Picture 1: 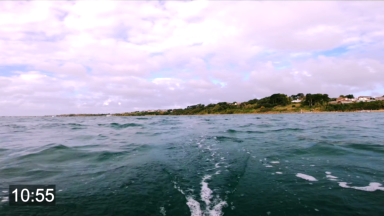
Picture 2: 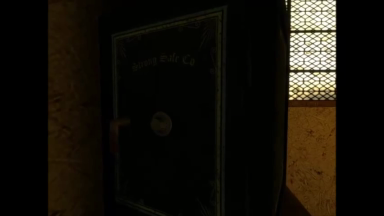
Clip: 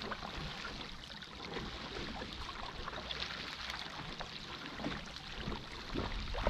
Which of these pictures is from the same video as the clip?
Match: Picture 1